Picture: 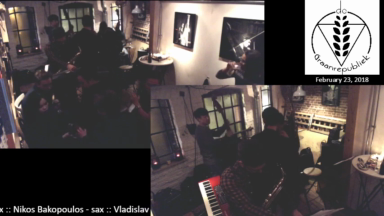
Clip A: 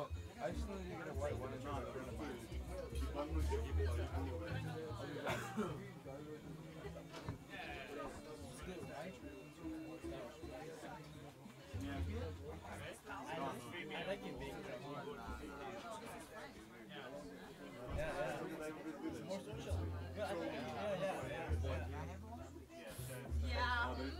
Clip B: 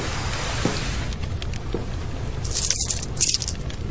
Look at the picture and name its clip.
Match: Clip A